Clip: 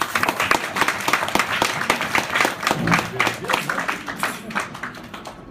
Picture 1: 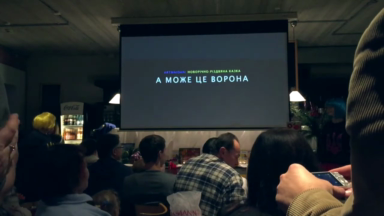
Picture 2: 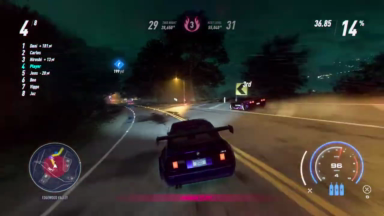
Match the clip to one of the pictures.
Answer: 1